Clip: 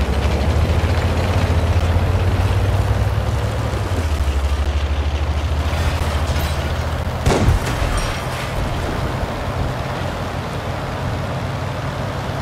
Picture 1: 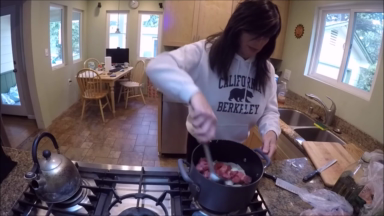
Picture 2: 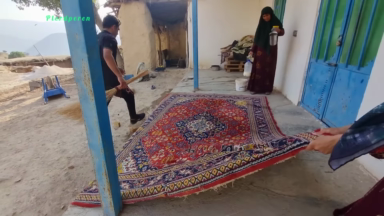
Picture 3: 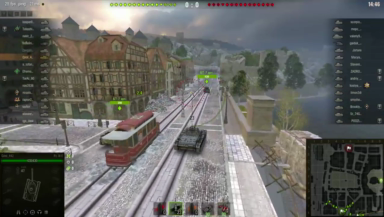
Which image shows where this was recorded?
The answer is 3